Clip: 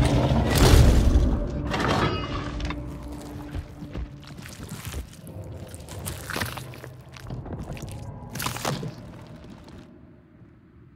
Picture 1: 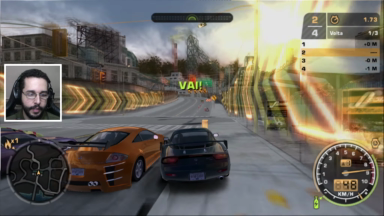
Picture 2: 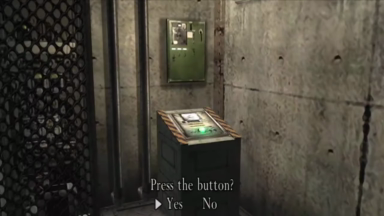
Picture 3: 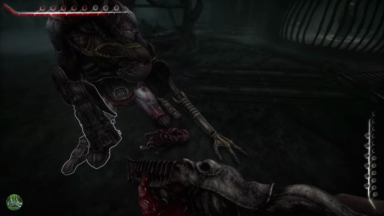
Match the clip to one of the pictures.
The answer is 3